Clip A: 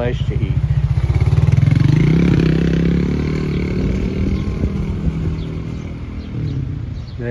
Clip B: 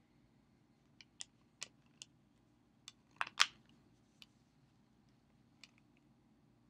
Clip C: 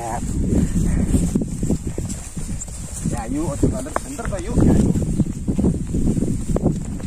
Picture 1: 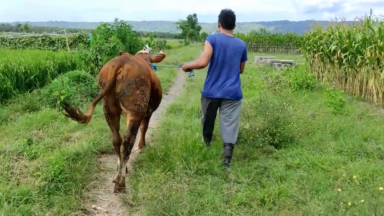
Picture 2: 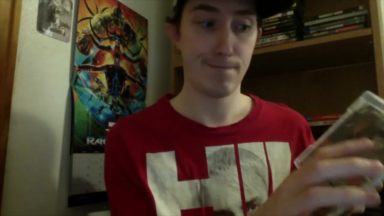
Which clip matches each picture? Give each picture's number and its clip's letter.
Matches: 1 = C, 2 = B